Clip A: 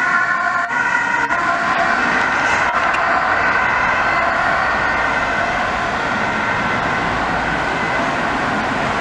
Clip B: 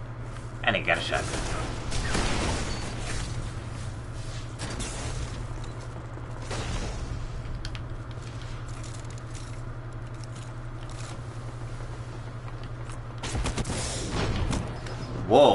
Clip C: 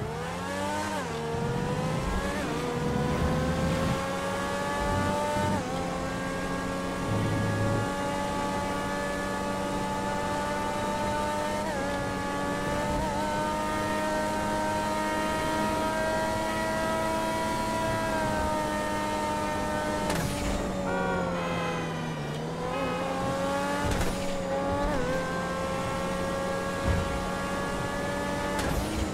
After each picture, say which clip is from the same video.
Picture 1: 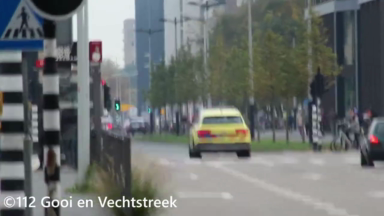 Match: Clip A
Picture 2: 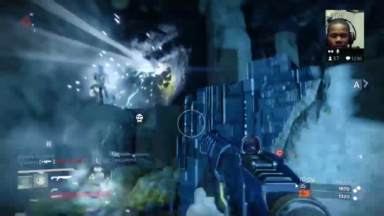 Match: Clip B